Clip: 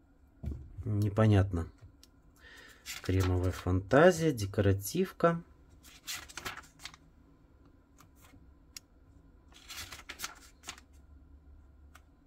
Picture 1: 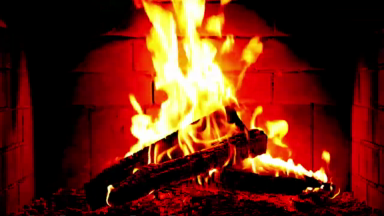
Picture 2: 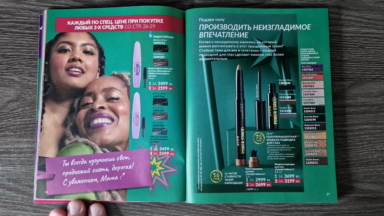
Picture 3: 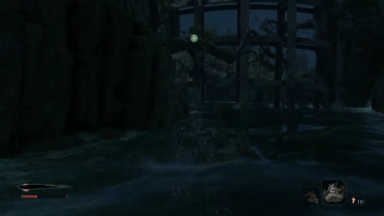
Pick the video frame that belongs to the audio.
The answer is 2